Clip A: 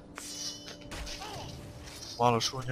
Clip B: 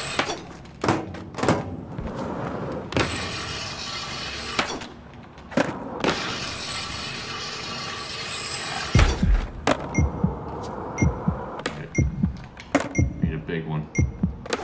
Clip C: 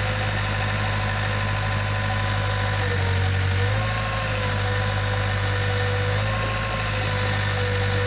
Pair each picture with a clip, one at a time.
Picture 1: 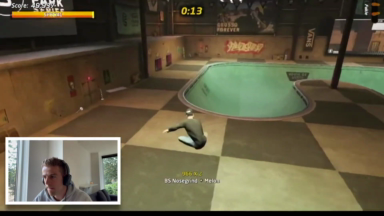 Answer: B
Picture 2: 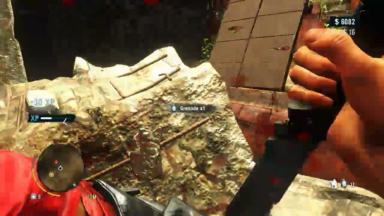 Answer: A